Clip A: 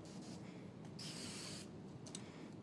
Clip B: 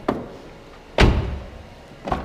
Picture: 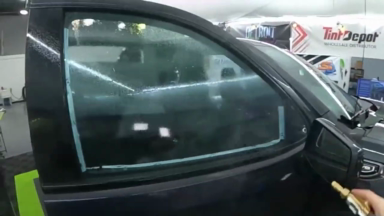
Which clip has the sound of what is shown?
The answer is A